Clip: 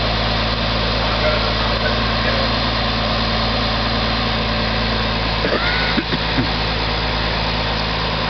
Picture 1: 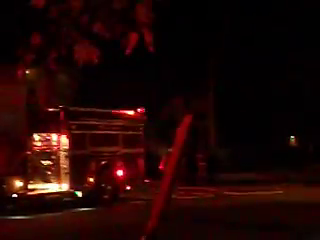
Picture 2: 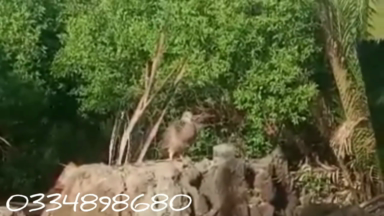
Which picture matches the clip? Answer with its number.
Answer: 1